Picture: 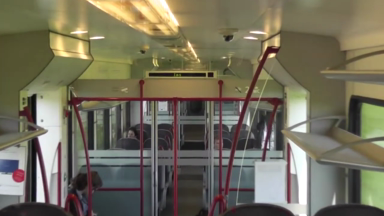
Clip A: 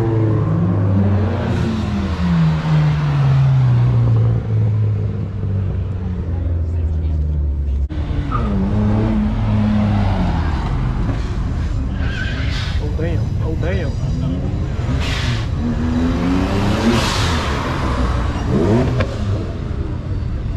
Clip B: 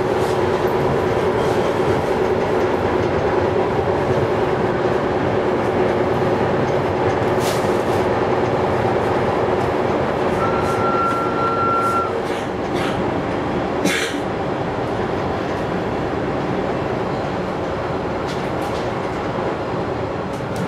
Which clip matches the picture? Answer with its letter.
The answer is B